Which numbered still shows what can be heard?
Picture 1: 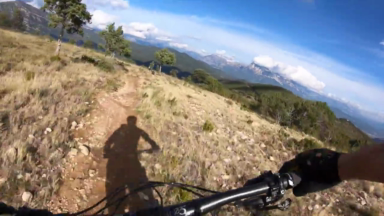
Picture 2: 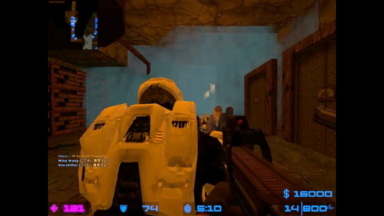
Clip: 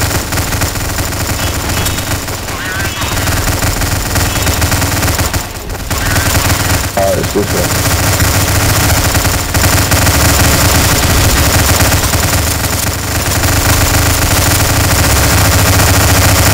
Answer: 2